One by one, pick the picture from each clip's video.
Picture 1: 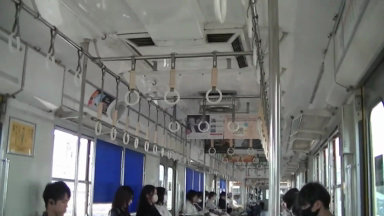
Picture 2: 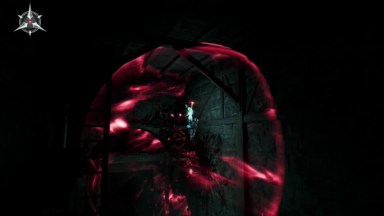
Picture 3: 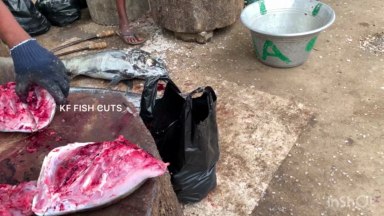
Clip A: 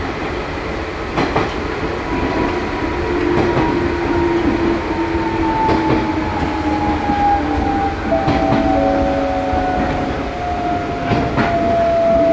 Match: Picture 1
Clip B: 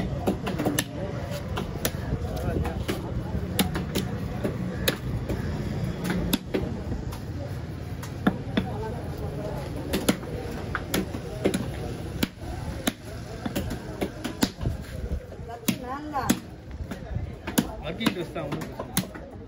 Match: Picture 3